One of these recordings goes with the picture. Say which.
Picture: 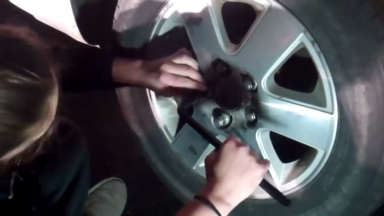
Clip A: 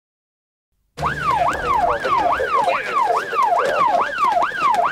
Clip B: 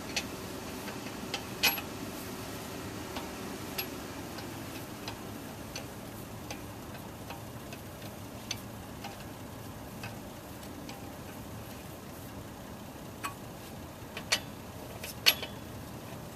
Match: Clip B